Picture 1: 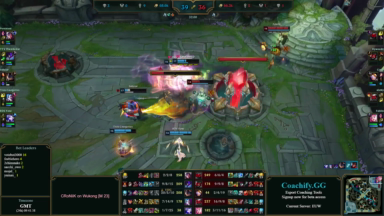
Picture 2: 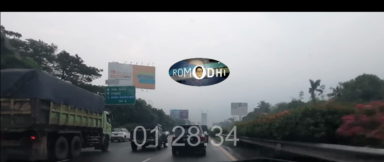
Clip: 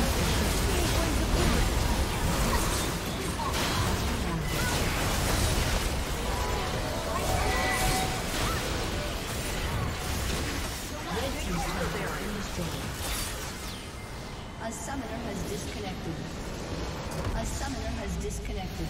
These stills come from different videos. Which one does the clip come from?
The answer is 1